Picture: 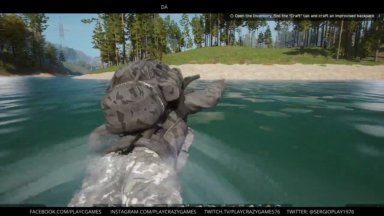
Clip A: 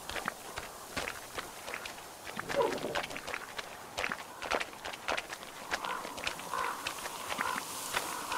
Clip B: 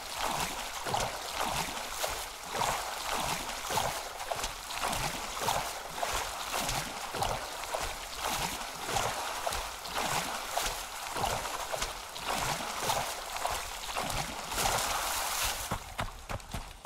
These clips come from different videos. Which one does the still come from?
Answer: B